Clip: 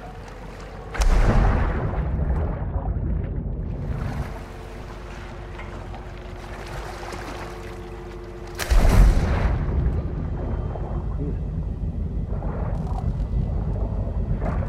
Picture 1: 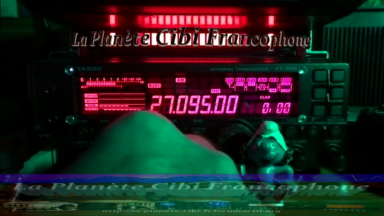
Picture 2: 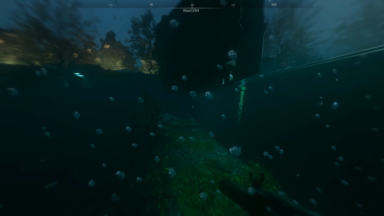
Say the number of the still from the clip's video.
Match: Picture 2